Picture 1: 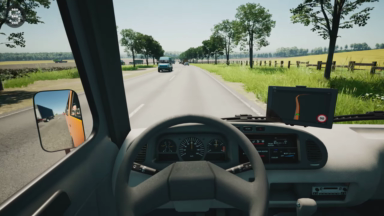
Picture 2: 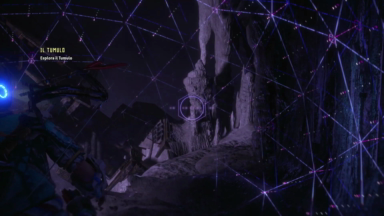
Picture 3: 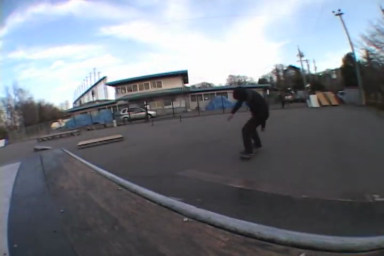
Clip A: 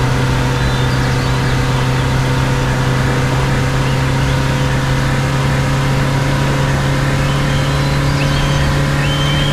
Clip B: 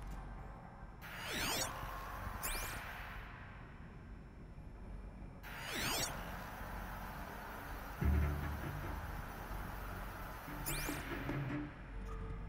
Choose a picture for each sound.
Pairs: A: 1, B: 2